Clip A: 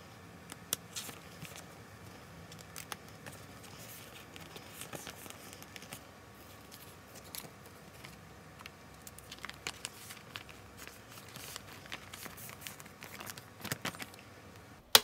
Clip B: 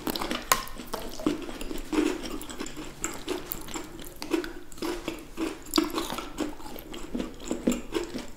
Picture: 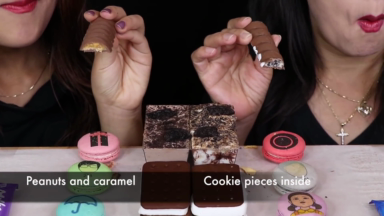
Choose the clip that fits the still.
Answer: B